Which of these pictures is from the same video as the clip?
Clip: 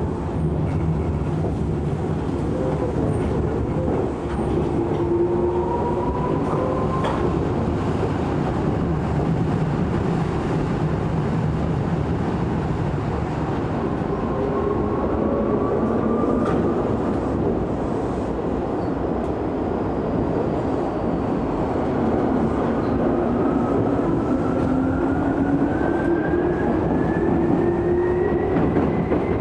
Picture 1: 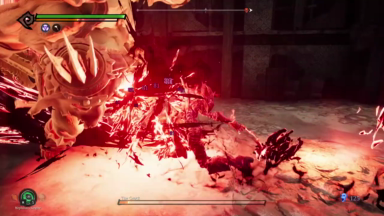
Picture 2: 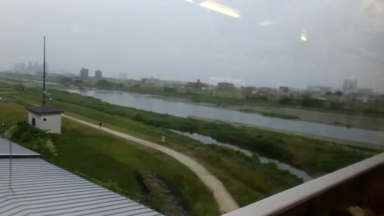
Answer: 2